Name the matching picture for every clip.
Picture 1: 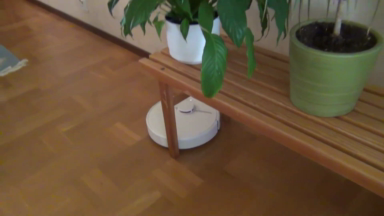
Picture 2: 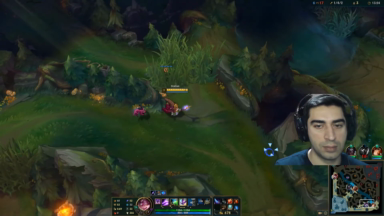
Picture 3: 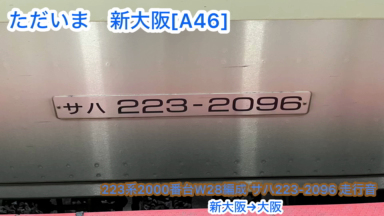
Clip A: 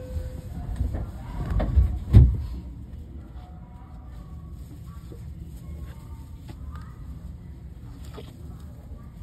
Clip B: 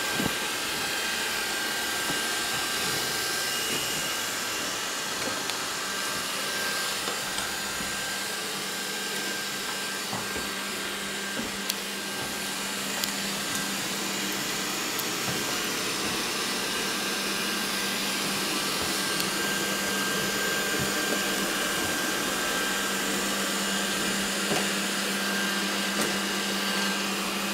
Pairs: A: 3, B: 1